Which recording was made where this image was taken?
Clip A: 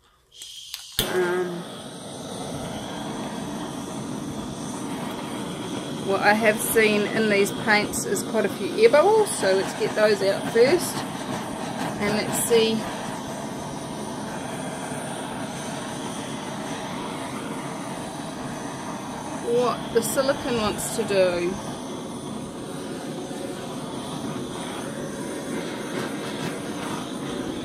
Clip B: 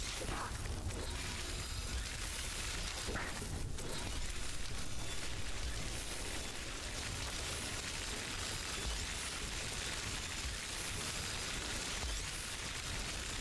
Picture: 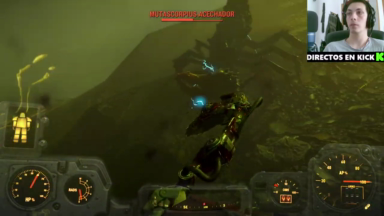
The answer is B